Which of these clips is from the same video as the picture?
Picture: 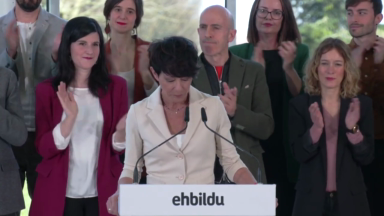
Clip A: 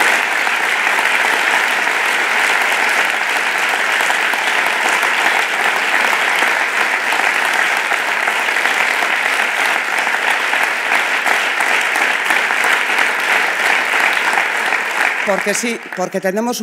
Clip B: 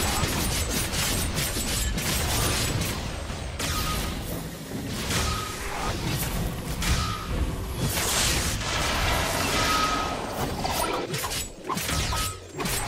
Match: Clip A